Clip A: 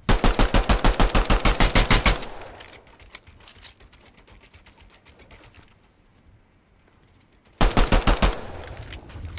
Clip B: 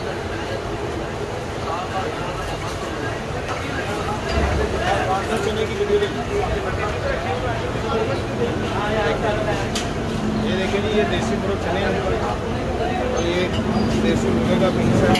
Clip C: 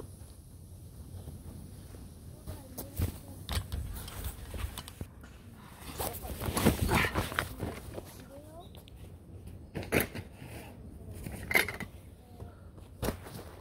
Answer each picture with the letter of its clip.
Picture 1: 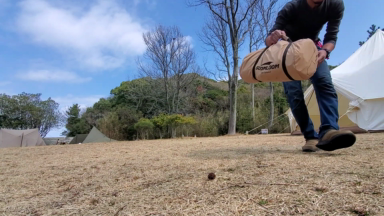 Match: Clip C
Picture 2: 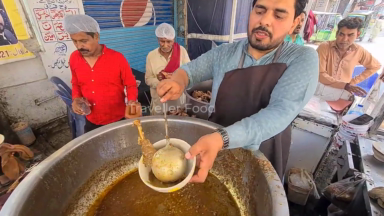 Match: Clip B